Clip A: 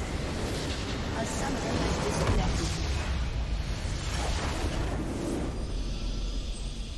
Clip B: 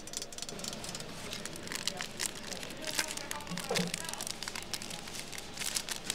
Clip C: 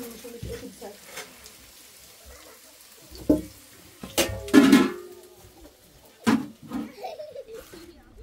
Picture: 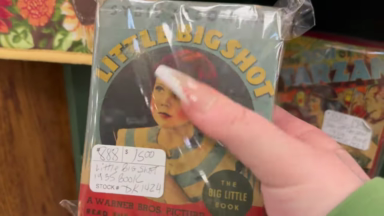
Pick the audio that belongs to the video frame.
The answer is B